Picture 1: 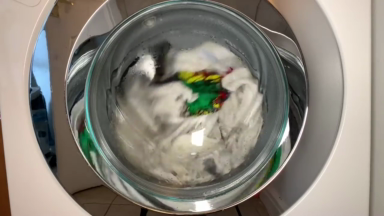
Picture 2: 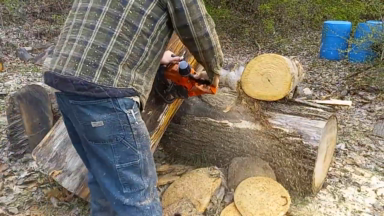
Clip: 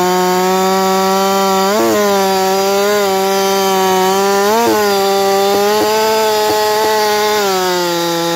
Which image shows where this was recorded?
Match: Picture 2